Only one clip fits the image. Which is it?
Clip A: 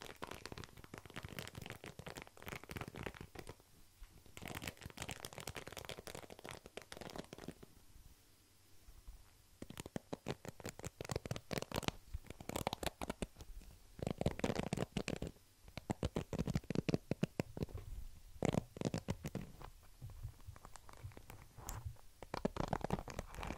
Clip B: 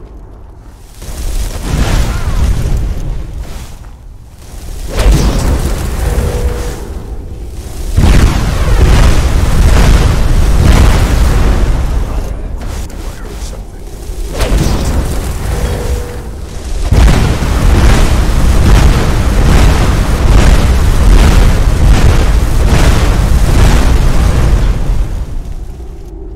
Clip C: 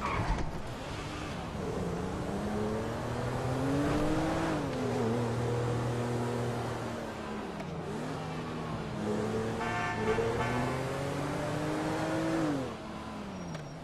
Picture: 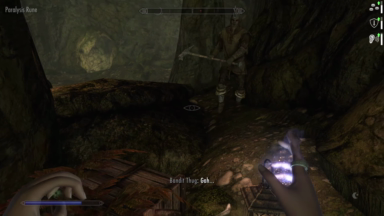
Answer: B